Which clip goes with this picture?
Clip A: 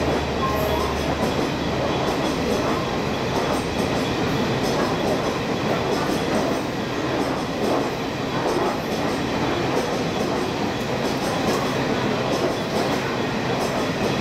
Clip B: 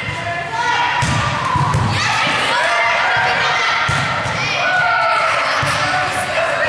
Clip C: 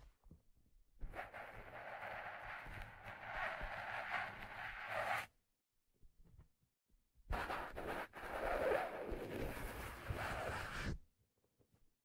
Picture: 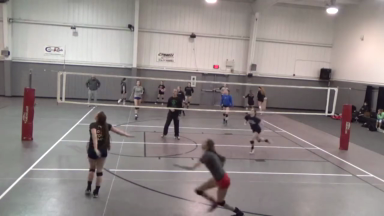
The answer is B